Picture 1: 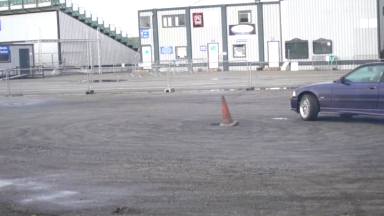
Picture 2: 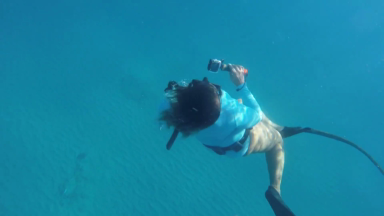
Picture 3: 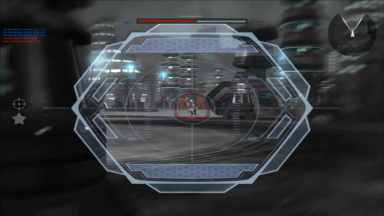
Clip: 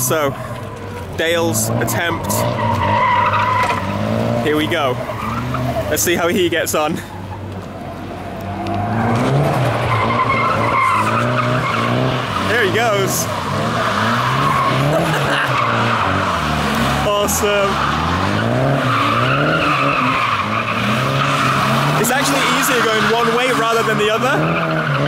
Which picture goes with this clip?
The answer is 1